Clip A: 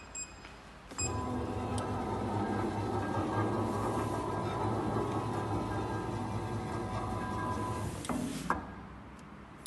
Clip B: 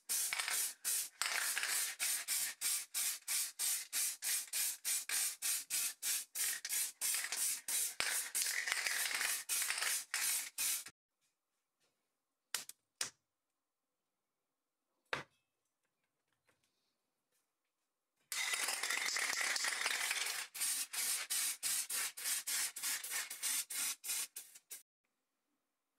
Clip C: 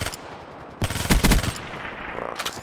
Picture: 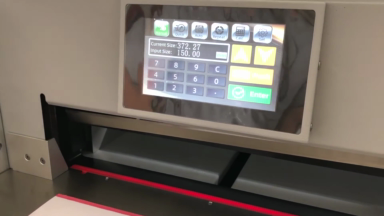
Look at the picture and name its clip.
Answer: A